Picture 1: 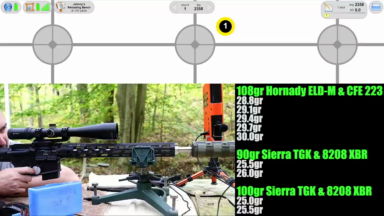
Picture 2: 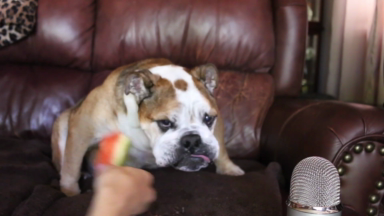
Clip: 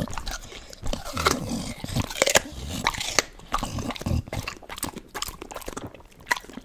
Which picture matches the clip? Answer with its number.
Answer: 2